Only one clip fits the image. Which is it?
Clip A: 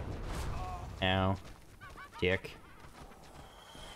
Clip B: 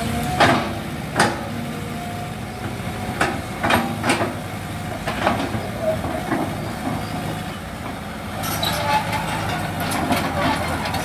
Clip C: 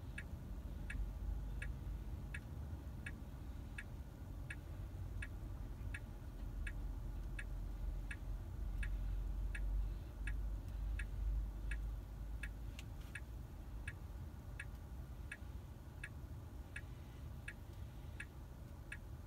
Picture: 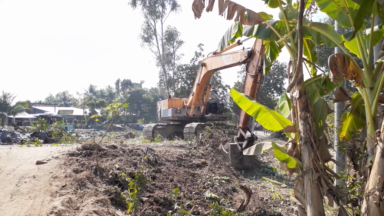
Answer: B